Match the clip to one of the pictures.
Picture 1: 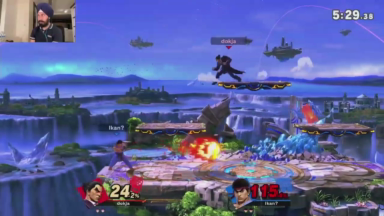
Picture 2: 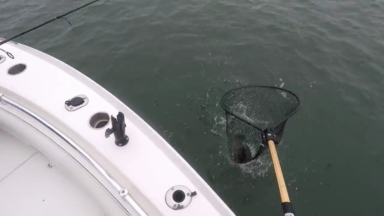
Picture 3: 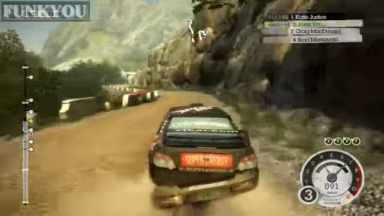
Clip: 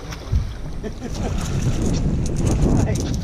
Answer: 2